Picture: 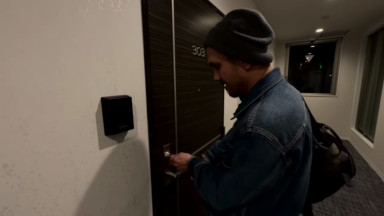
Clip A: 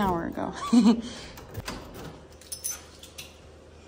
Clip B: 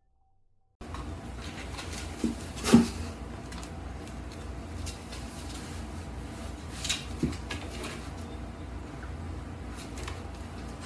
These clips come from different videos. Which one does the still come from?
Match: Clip A